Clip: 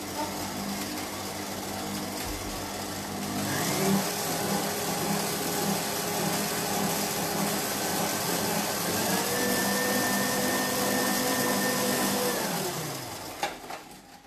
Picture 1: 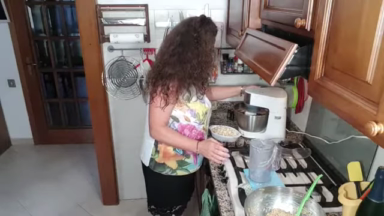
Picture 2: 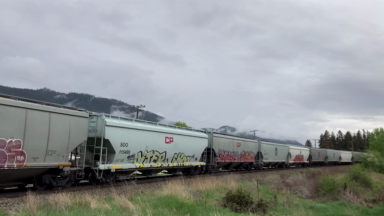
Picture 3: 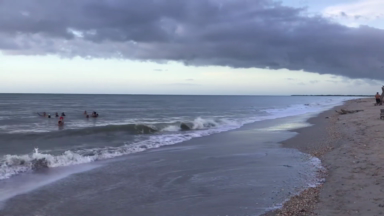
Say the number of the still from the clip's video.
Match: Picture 1